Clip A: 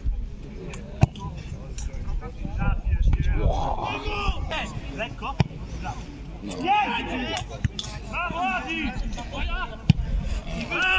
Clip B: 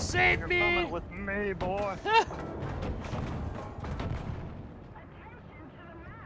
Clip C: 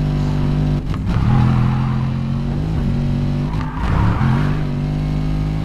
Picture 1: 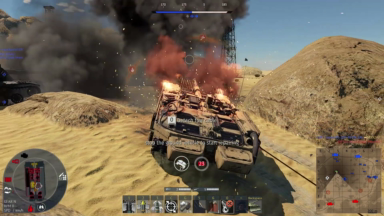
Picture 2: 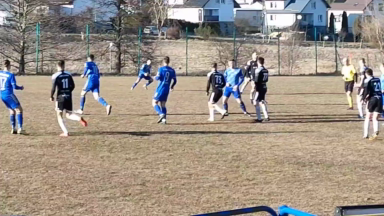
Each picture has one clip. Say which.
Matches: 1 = B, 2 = A